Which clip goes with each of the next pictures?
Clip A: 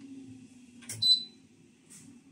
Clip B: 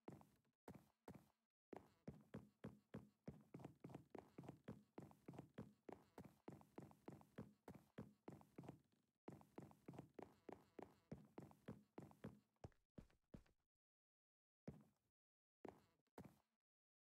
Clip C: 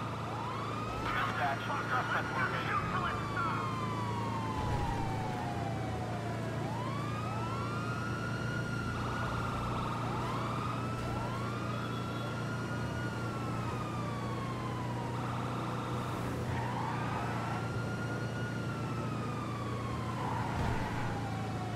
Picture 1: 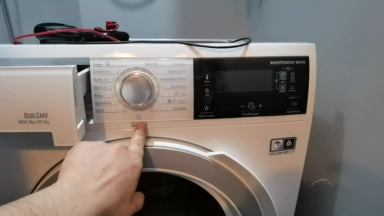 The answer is A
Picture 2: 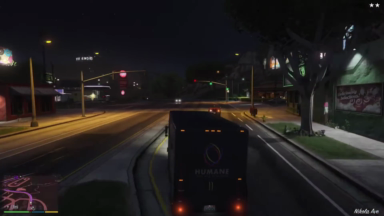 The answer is C